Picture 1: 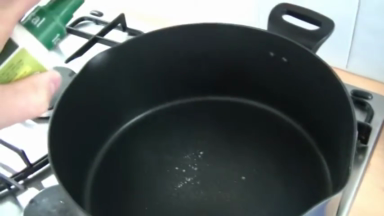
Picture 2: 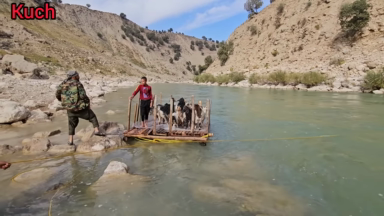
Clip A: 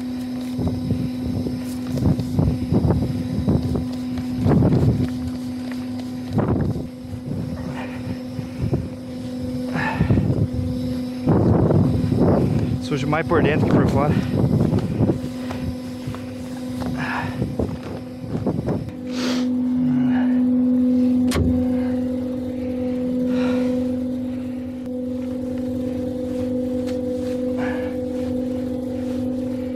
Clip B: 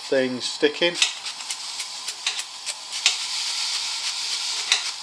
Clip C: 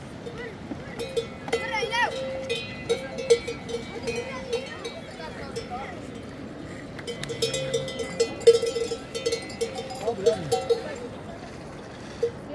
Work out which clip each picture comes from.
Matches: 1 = B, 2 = C